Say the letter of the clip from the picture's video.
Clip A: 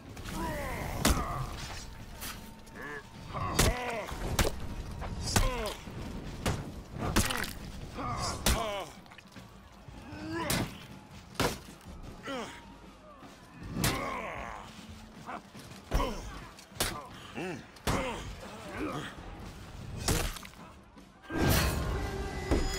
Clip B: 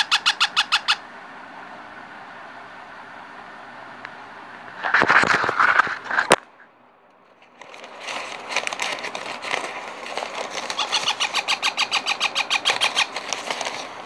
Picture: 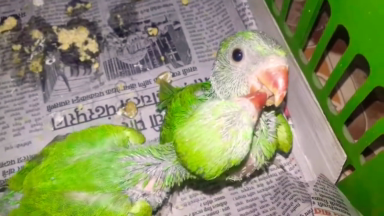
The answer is B